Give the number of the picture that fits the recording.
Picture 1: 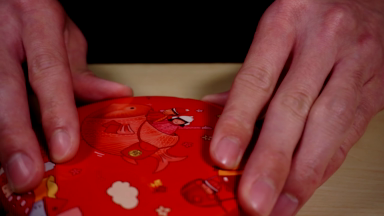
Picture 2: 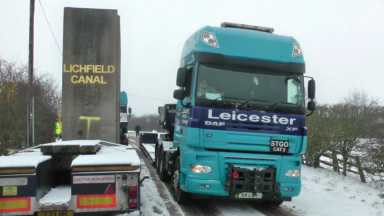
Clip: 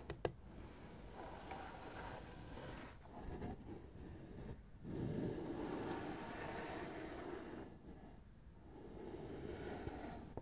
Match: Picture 1